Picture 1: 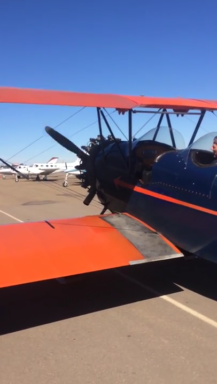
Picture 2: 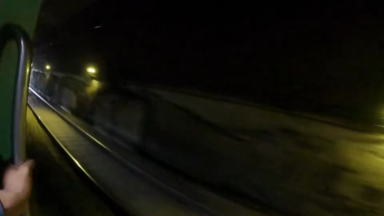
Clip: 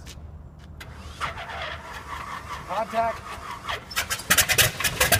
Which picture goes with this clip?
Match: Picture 1